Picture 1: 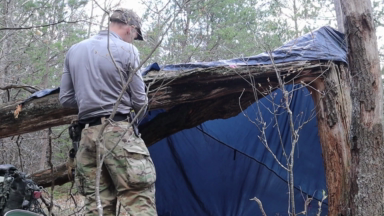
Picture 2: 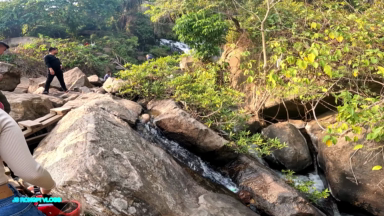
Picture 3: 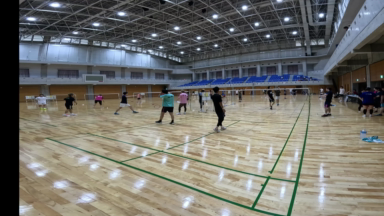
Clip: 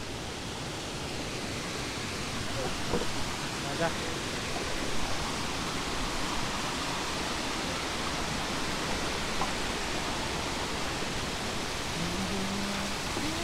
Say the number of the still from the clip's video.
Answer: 2